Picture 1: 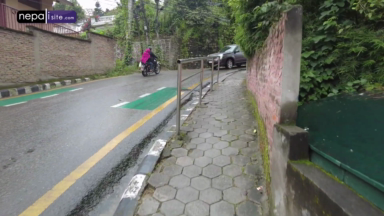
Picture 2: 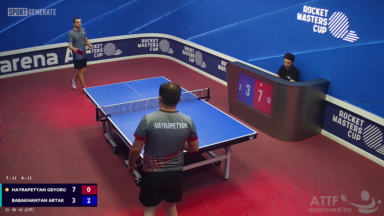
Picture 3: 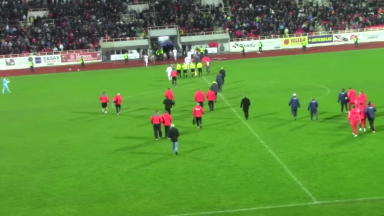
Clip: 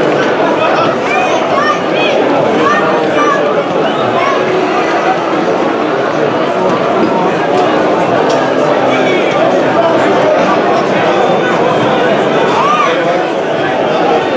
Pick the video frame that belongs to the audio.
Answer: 3